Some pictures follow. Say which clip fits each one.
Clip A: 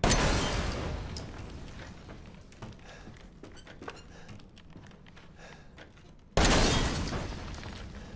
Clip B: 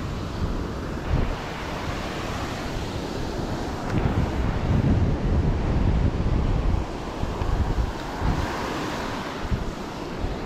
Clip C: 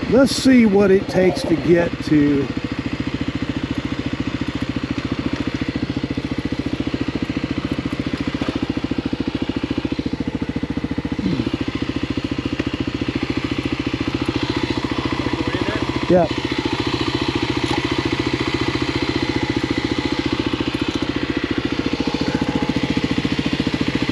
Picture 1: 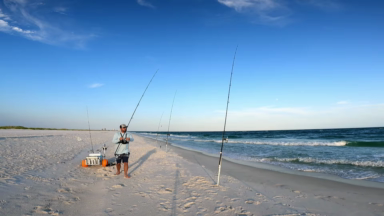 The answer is B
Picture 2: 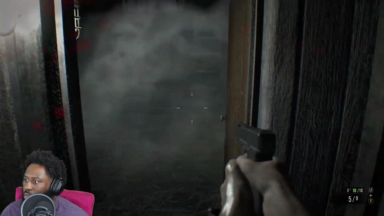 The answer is A